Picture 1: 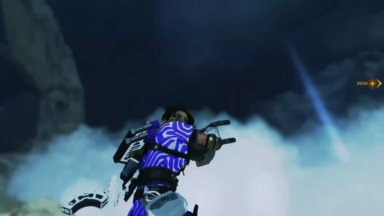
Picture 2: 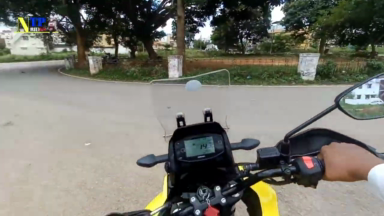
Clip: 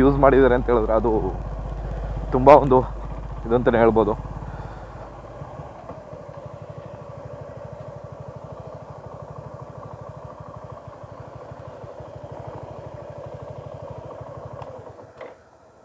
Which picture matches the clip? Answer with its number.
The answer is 2